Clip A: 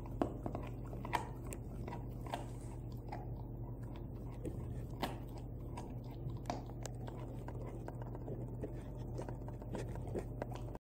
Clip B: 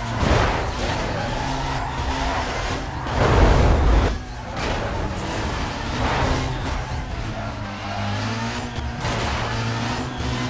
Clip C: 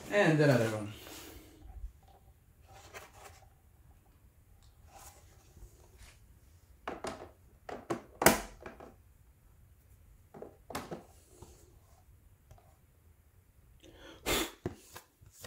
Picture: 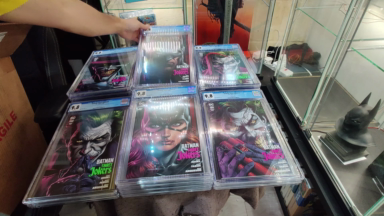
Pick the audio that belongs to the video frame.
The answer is C